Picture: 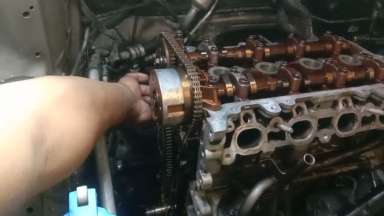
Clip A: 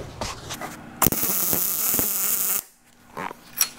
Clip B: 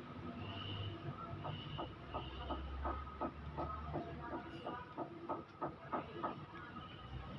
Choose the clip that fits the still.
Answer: B